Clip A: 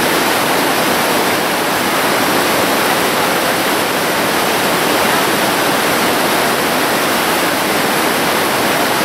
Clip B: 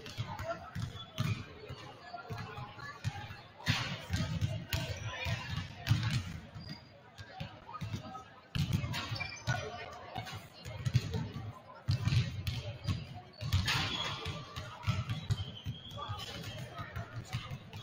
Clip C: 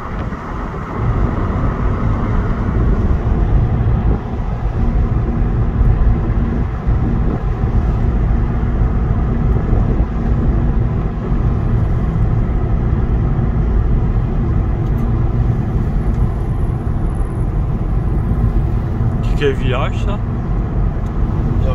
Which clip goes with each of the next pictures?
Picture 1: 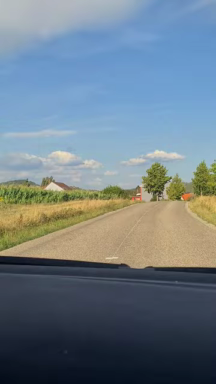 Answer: C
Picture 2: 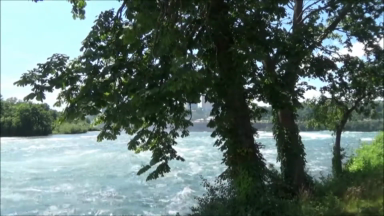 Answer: A